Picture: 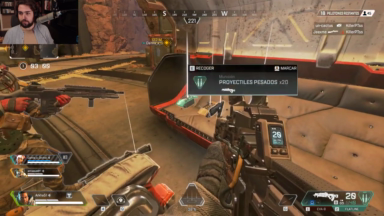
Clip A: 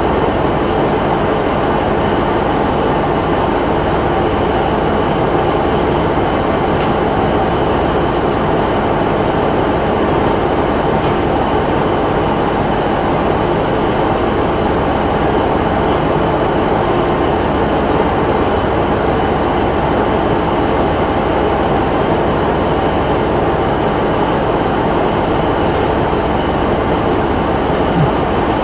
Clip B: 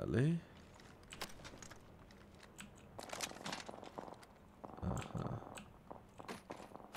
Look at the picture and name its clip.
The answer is B